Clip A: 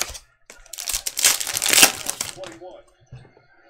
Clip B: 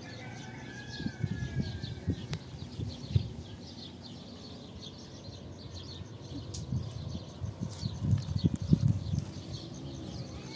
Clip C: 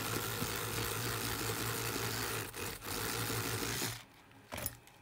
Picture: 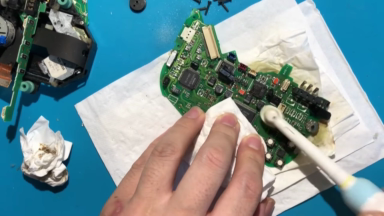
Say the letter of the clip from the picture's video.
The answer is C